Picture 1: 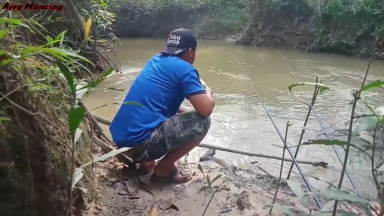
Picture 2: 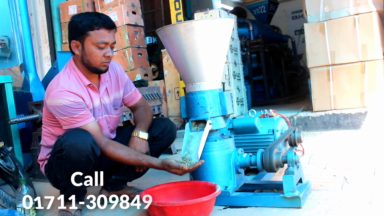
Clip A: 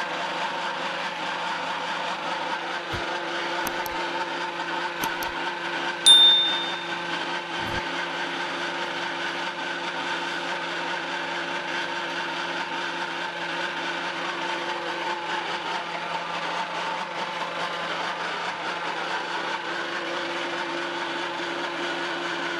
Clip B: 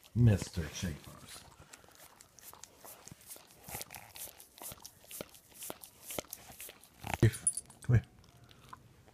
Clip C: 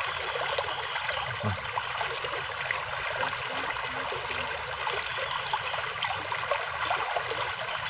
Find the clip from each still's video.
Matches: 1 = C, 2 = A